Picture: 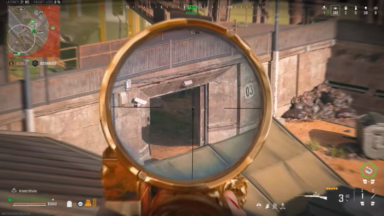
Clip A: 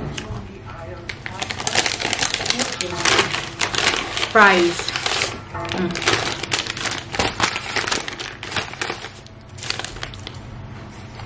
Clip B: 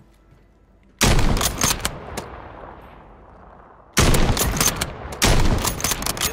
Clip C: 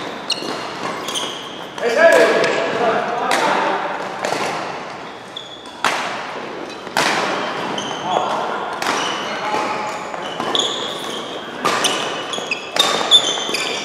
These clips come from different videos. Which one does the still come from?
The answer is B